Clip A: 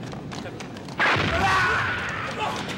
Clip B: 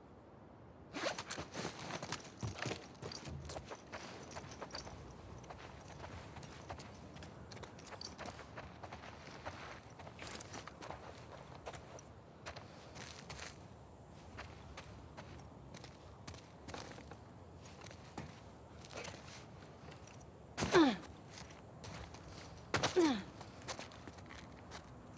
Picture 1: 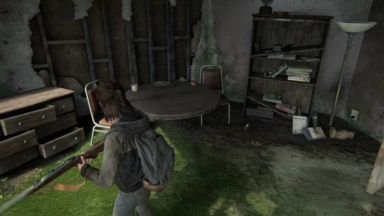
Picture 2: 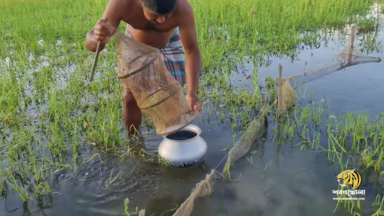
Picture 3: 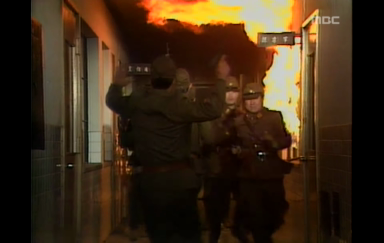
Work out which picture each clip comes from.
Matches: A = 3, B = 1